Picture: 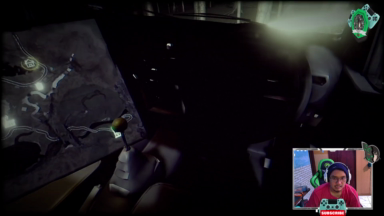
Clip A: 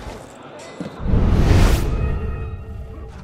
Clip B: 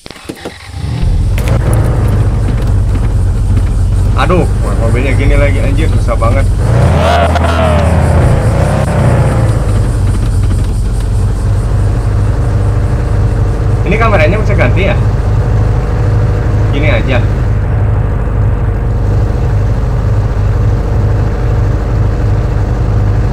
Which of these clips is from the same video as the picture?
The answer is B